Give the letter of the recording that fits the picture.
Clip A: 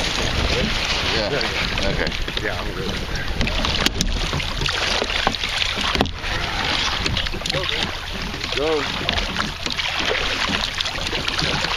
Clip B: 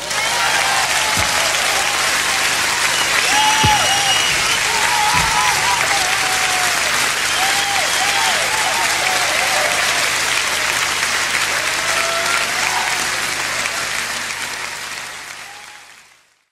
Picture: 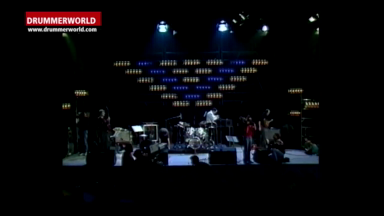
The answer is B